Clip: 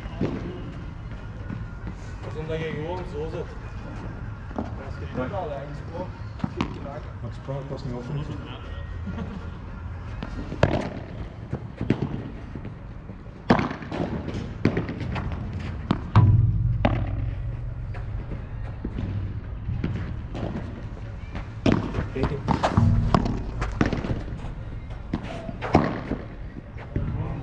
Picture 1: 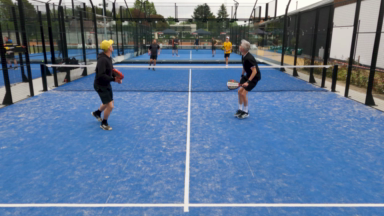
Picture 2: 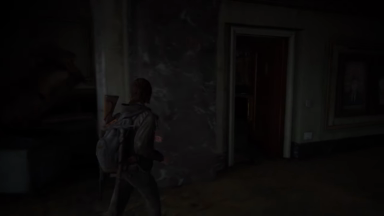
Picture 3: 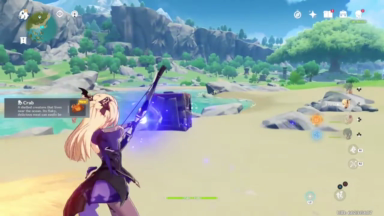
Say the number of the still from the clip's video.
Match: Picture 1